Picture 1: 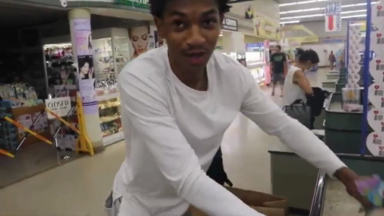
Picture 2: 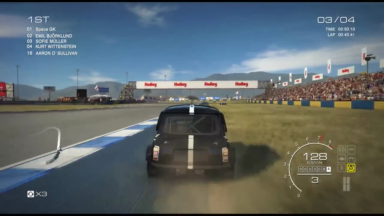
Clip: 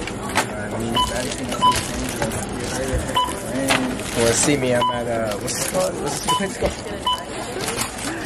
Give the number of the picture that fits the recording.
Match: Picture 1